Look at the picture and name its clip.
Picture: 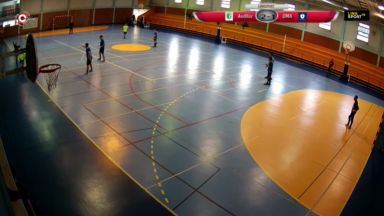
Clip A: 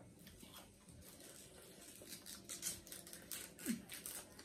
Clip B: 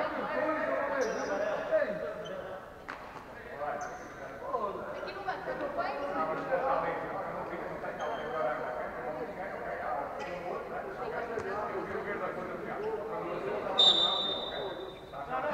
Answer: B